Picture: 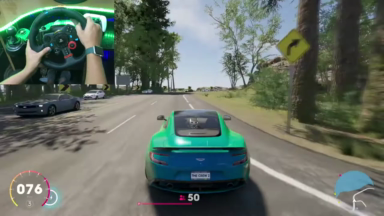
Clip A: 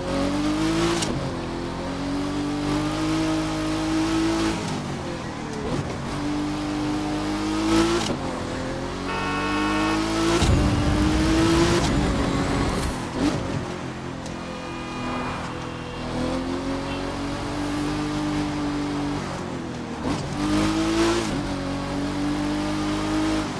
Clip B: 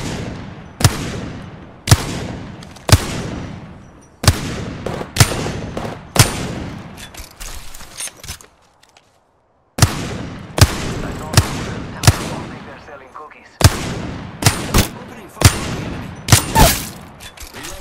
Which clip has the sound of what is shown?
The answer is A